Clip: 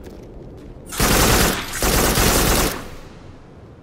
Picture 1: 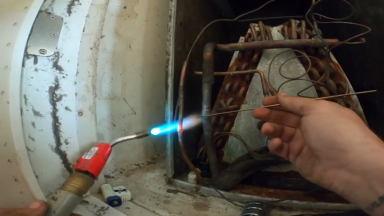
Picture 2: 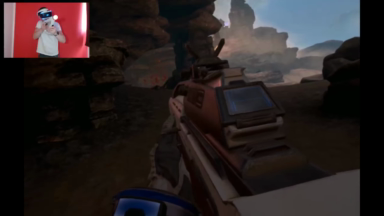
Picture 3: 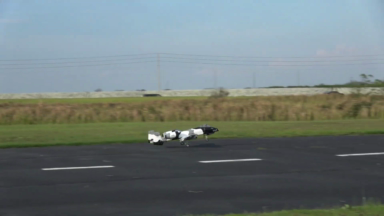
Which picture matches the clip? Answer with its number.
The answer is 2